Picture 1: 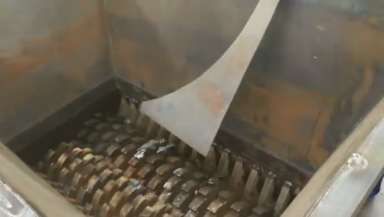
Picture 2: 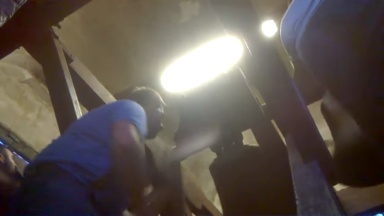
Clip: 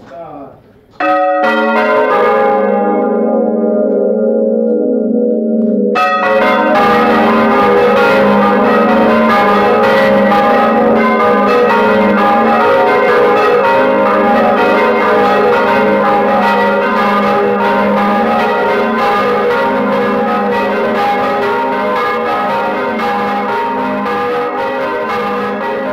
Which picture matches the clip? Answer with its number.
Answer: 2